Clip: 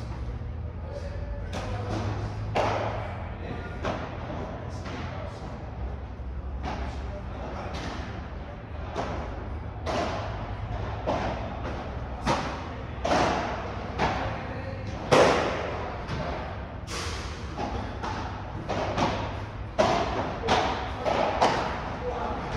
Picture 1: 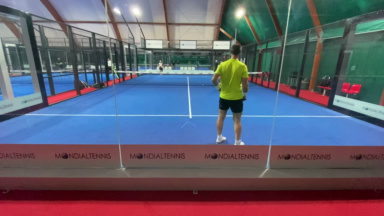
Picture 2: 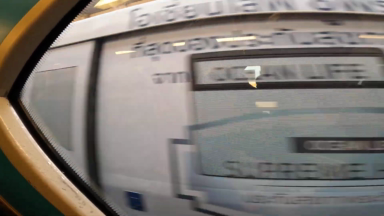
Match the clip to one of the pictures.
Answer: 1